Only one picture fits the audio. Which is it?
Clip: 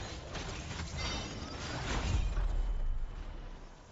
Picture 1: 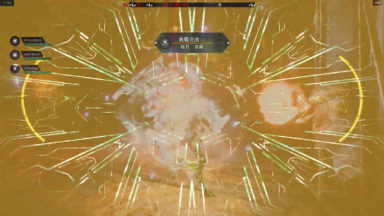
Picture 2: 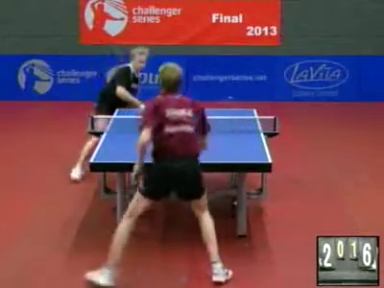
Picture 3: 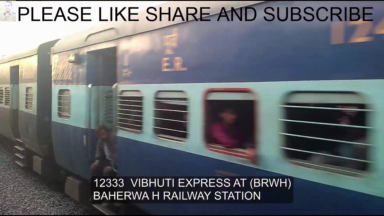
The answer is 1